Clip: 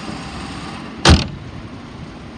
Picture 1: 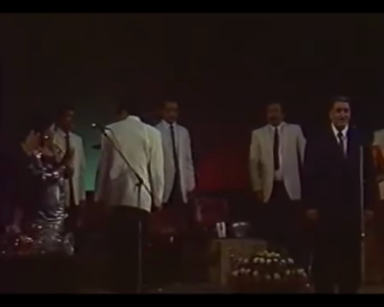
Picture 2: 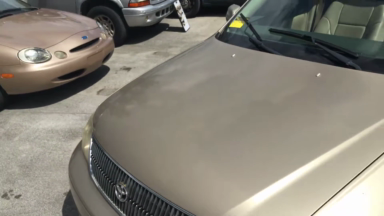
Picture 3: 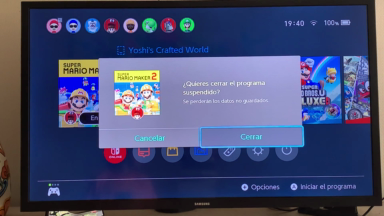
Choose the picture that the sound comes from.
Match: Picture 2